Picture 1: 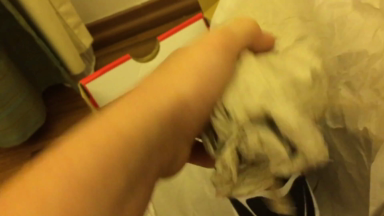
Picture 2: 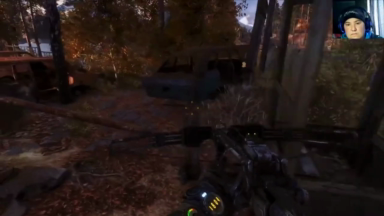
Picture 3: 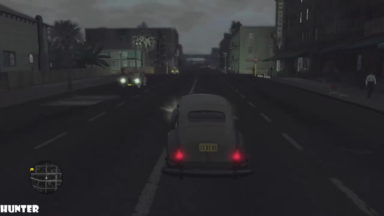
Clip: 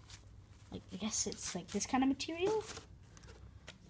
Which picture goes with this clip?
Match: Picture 1